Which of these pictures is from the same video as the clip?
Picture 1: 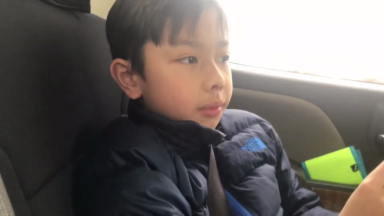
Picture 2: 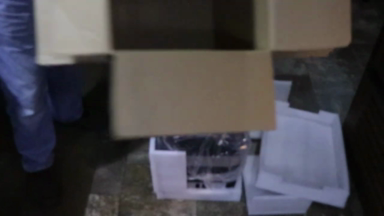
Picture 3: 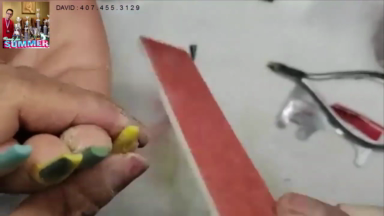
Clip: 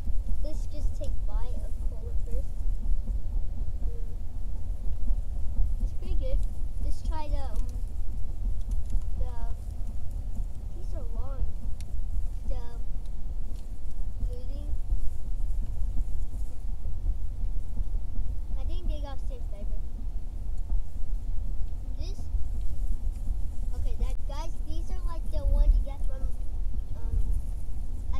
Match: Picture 1